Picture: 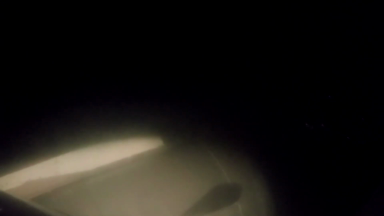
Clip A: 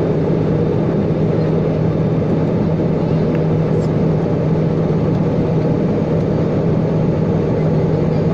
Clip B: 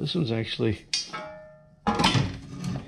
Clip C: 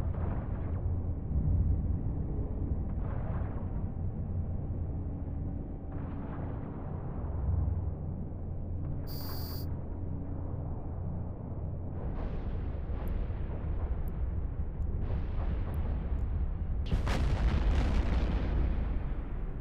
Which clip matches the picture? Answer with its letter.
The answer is A